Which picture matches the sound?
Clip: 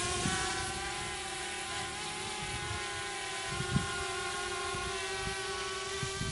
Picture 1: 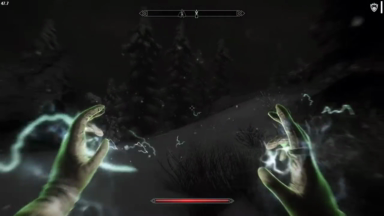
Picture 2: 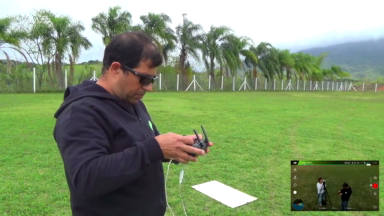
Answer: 2